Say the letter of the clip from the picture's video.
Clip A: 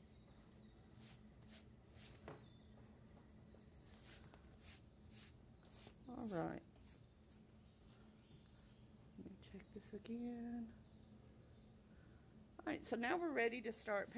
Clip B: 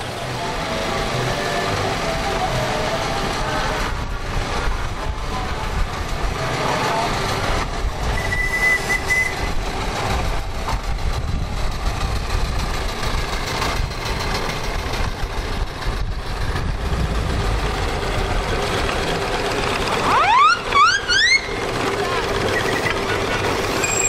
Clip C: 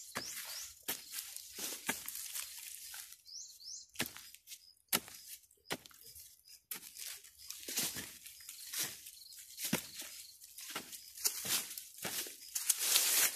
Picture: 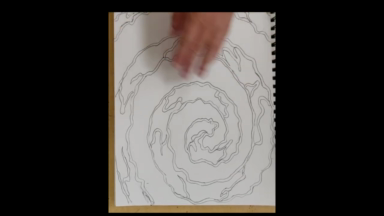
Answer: A